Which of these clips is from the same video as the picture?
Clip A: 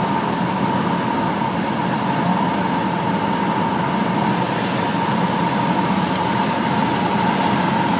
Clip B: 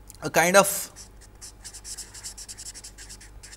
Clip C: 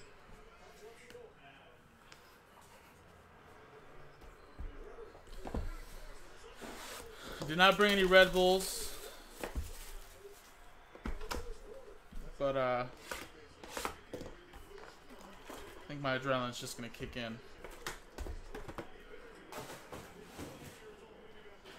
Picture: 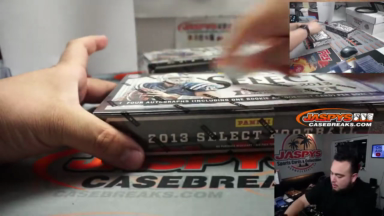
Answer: C